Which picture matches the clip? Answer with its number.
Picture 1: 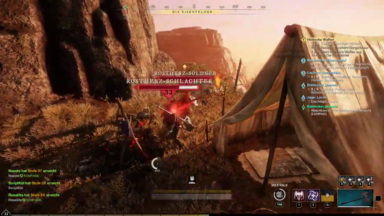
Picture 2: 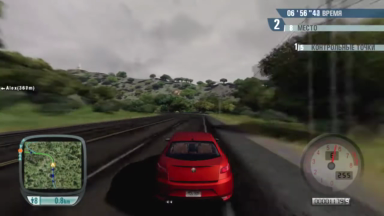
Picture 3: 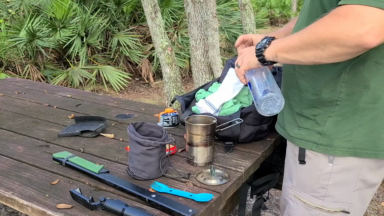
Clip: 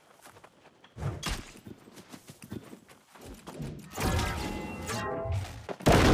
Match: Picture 1